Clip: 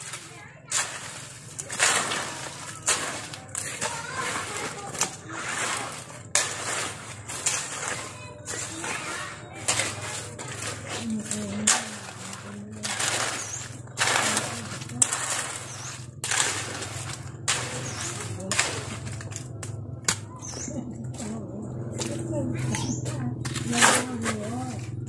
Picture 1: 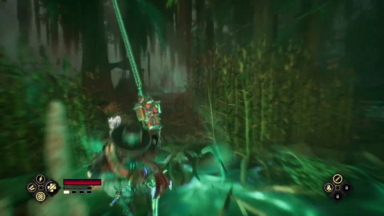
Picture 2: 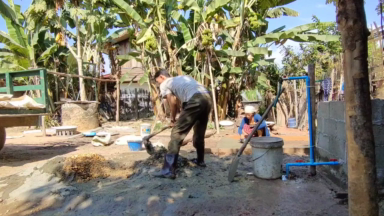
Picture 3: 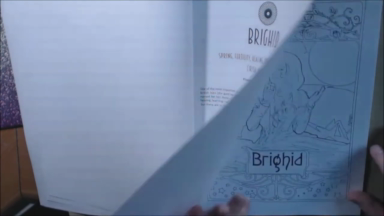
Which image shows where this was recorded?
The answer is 2